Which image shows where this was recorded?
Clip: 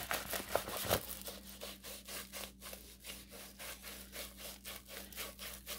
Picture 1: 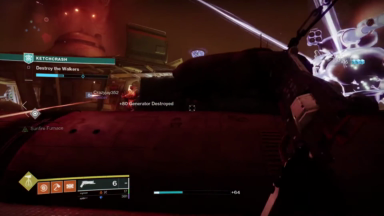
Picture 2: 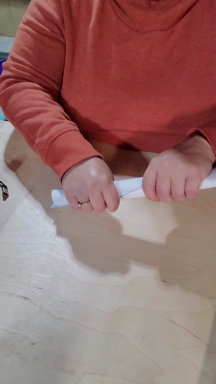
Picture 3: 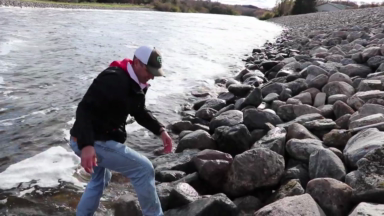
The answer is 2